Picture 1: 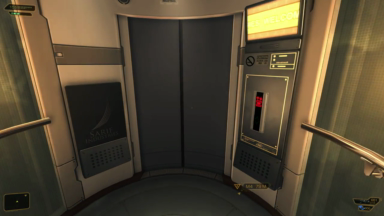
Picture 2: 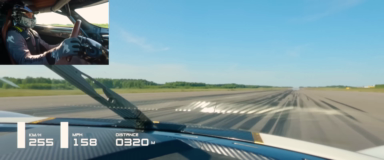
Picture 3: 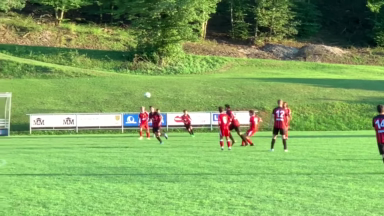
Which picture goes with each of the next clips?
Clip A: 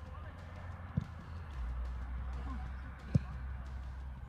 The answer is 3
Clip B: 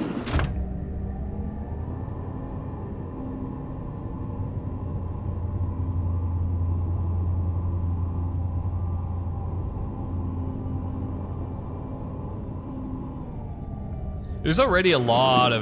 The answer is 1